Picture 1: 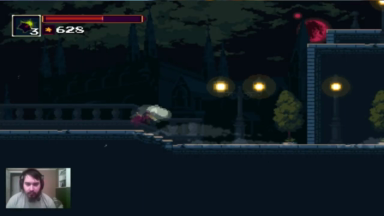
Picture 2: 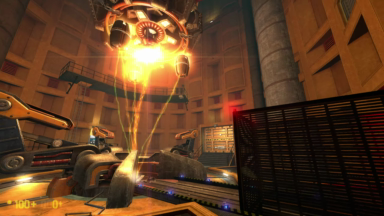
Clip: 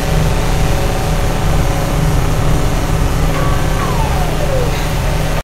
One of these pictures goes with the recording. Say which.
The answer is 2